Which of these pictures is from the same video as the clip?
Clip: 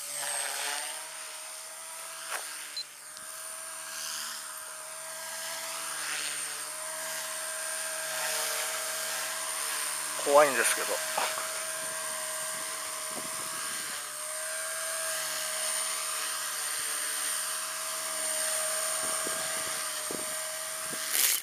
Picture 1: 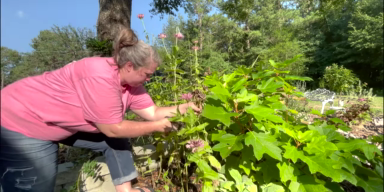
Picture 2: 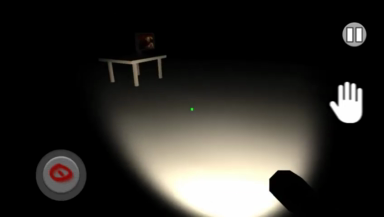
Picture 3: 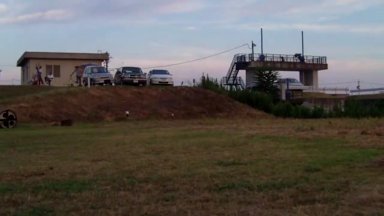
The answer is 3